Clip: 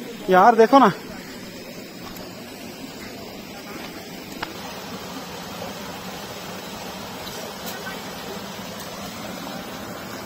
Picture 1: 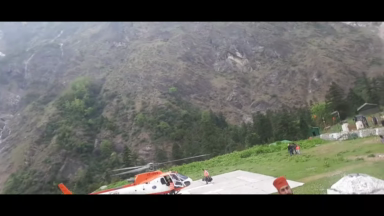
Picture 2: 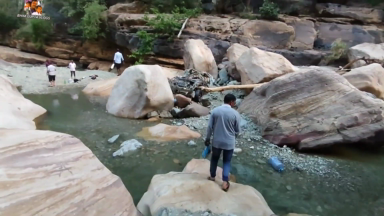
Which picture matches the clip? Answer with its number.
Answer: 2